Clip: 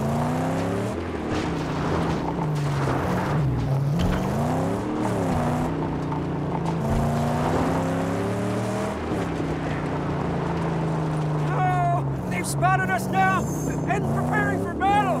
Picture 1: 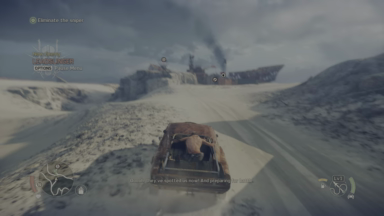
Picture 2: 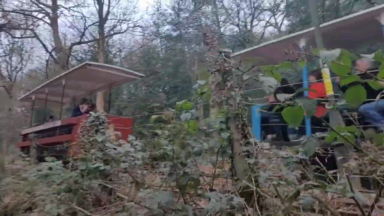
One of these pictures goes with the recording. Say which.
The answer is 1